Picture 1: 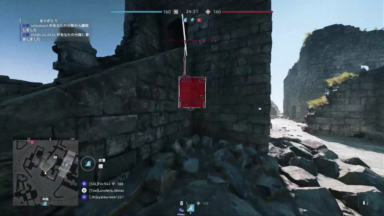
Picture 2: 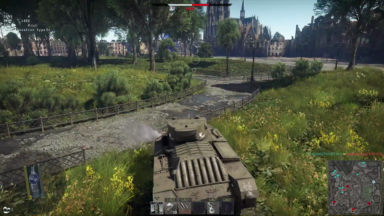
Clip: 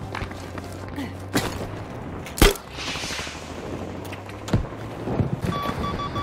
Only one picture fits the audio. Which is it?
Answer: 1